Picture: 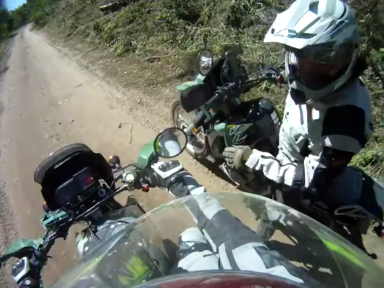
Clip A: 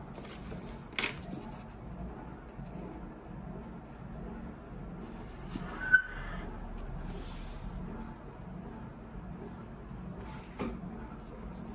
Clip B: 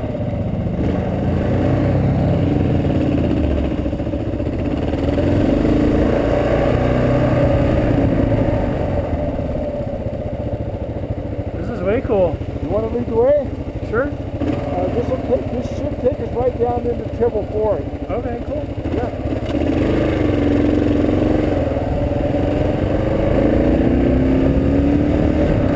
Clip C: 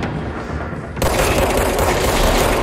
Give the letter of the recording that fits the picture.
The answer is B